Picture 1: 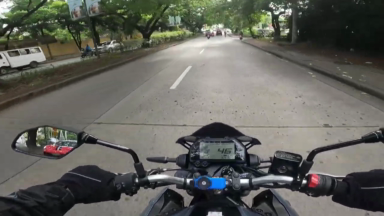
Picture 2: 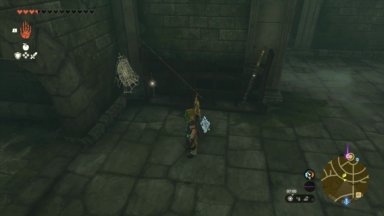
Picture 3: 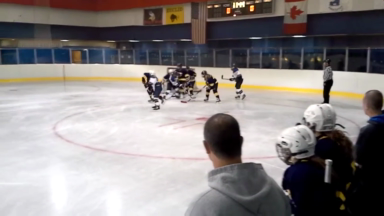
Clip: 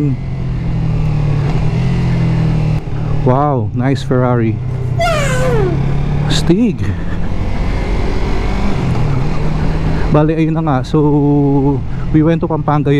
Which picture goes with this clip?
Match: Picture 1